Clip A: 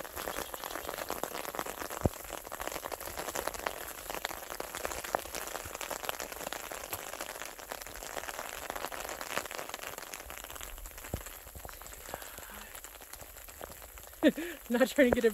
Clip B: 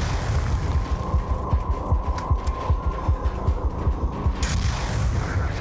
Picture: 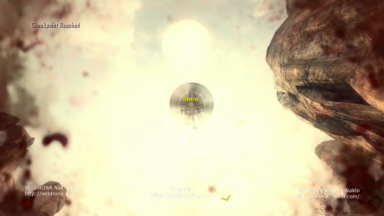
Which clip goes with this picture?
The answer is B